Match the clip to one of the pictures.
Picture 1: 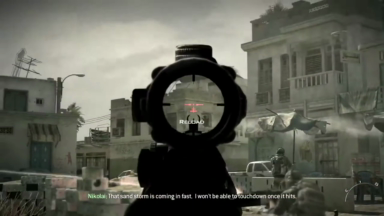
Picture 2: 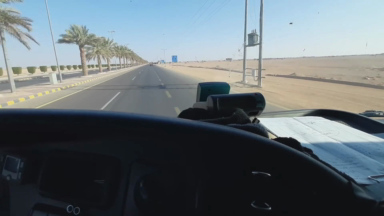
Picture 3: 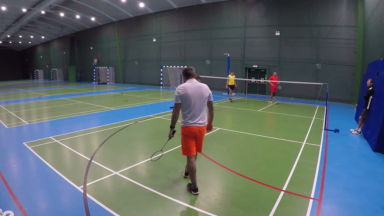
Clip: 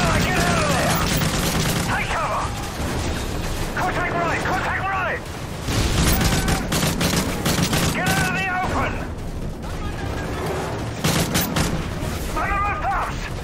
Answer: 1